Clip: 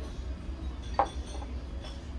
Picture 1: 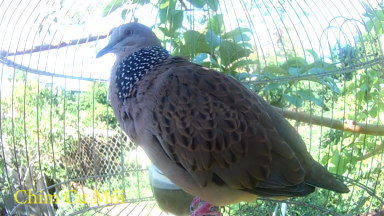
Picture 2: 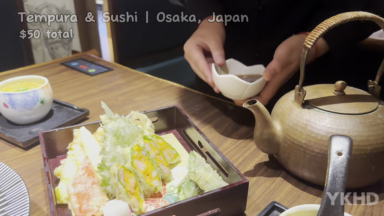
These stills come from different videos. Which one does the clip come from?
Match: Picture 2